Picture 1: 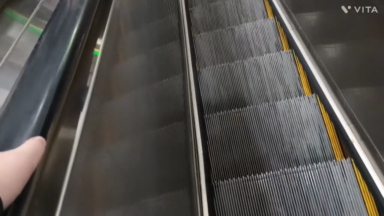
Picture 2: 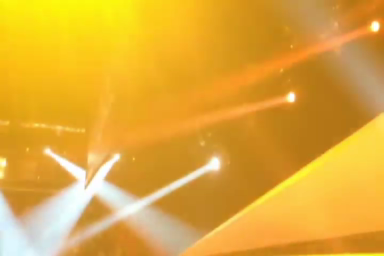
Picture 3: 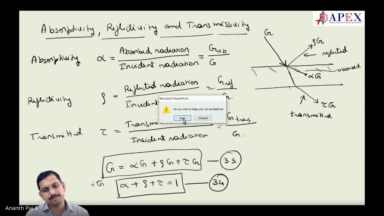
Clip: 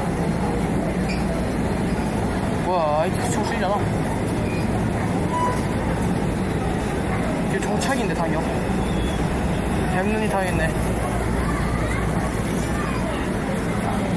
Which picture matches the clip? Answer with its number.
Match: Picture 1